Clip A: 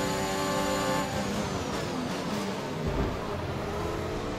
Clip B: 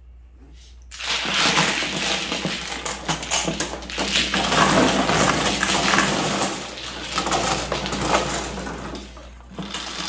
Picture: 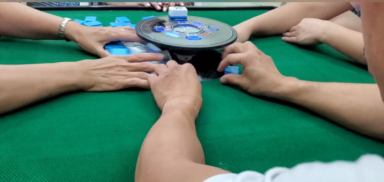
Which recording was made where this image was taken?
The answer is B